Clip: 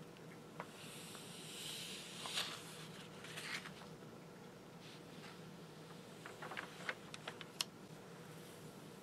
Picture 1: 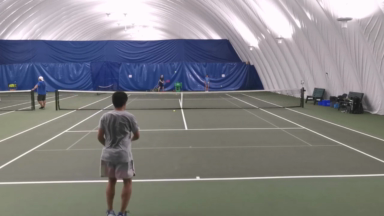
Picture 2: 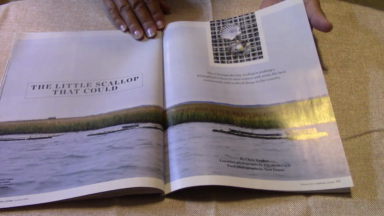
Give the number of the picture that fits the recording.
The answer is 2